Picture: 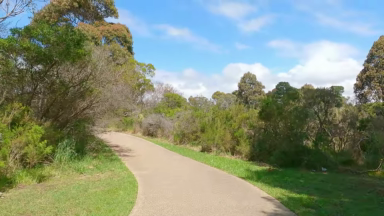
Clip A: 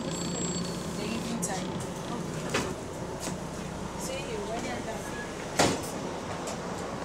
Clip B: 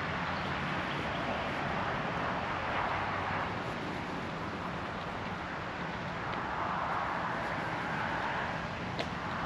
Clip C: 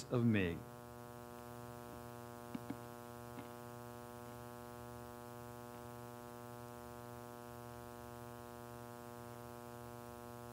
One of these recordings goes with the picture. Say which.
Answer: B